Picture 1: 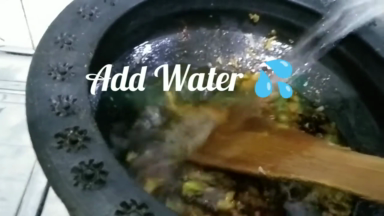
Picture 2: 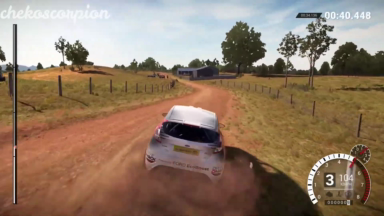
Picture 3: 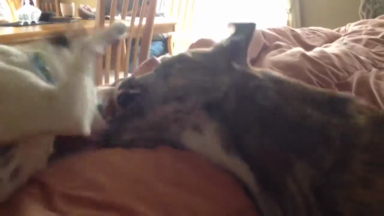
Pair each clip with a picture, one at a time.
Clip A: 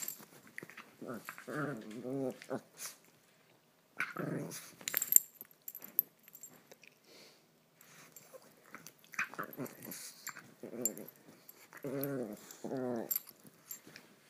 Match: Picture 3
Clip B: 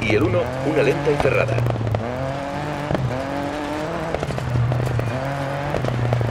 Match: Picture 2